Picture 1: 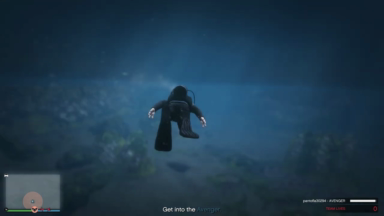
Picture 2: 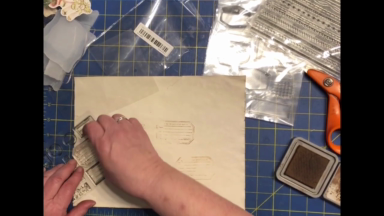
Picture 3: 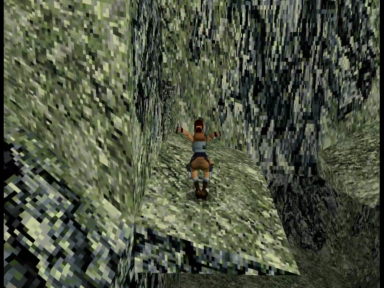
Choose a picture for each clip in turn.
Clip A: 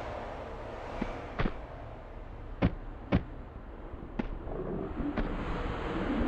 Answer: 3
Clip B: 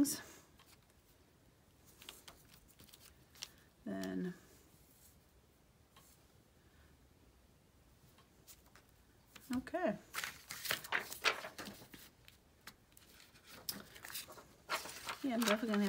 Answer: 2